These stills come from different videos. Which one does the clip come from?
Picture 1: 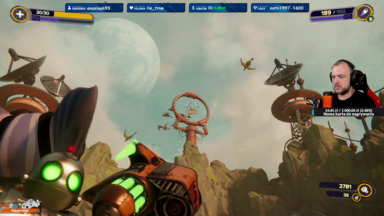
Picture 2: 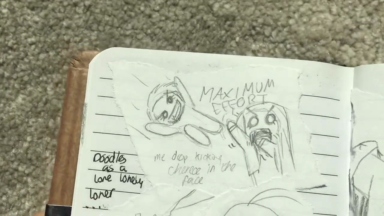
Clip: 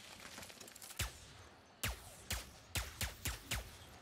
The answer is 1